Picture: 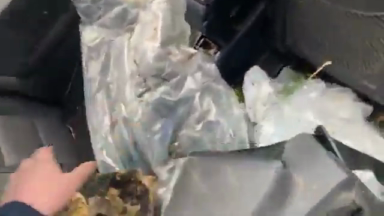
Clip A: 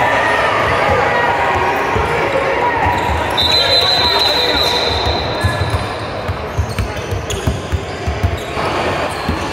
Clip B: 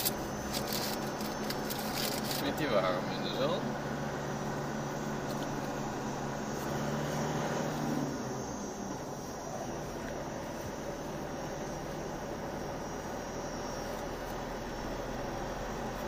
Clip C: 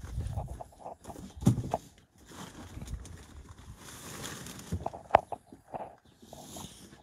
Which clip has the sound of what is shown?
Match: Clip C